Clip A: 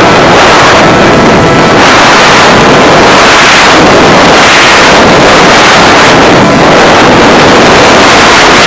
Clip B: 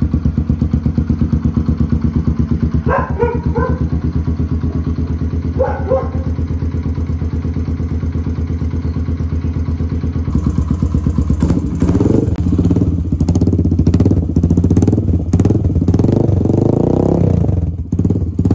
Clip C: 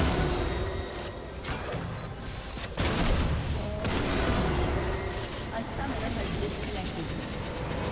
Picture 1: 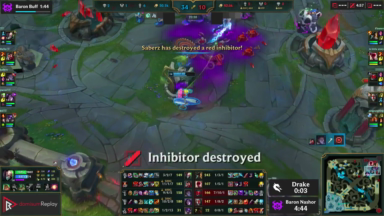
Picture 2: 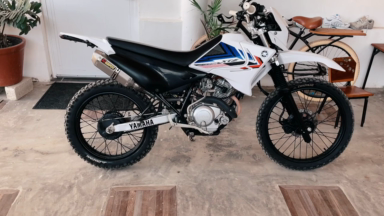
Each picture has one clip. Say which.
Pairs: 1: C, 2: B